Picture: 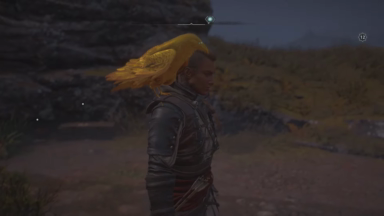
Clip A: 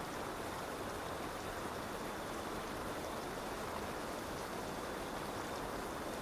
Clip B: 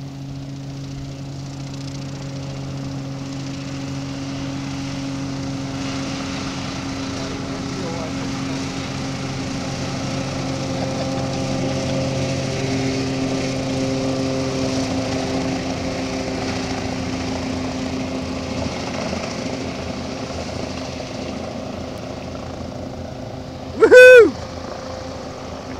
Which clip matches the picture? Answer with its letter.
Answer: A